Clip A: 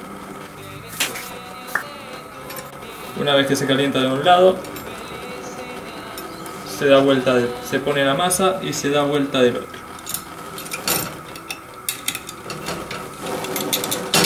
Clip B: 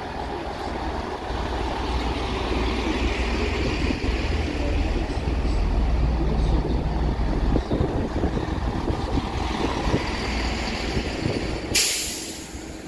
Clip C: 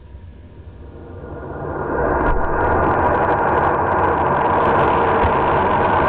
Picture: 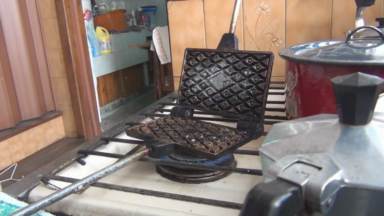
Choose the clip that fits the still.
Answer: A